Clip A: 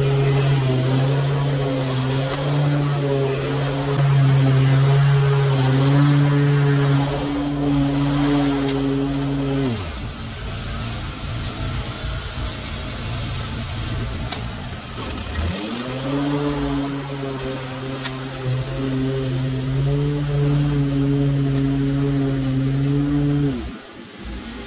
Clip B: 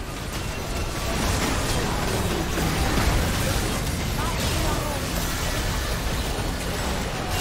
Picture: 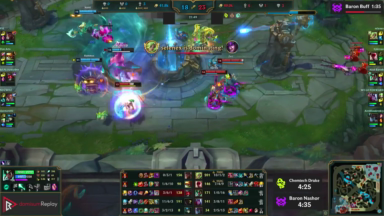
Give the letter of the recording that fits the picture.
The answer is B